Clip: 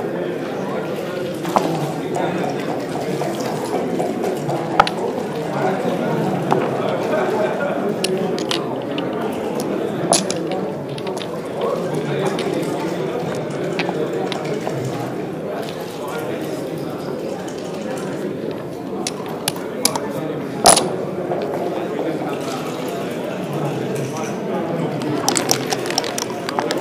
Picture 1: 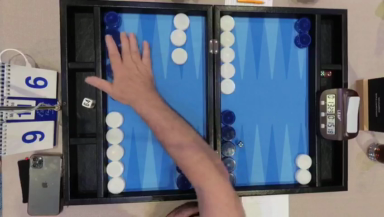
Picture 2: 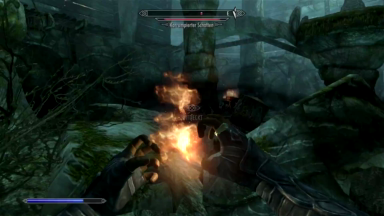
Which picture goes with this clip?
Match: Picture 1